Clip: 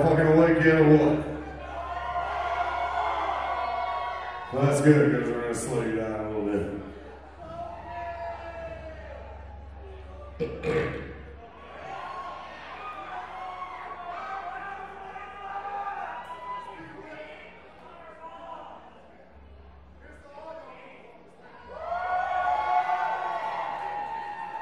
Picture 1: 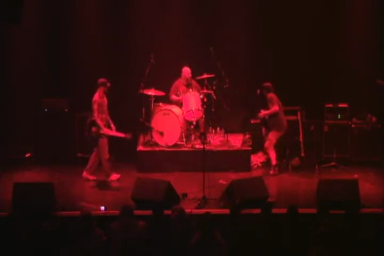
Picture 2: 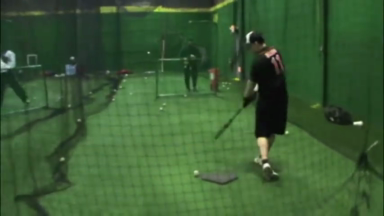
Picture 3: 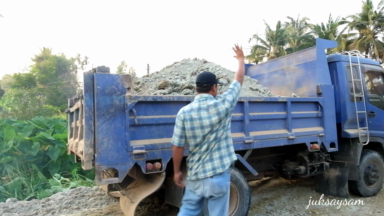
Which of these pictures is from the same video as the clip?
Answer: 1